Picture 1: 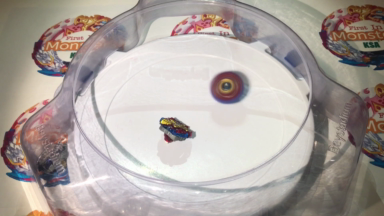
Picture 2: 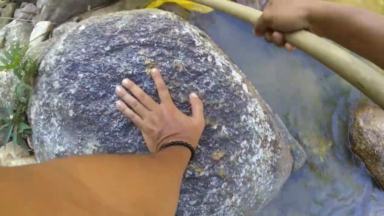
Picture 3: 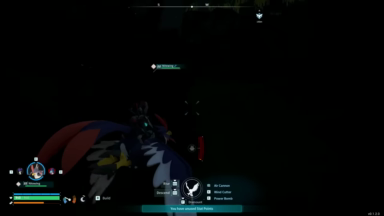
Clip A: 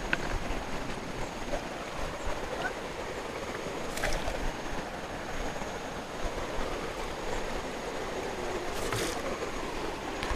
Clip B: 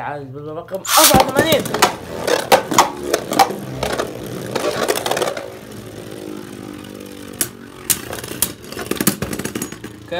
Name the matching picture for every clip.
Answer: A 2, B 1